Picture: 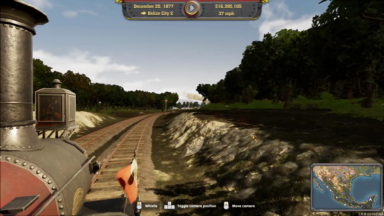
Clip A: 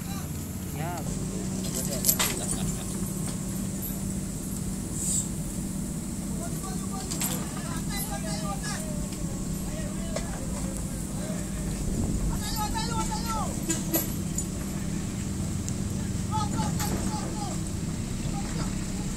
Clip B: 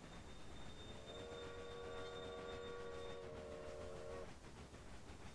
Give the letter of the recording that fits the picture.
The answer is B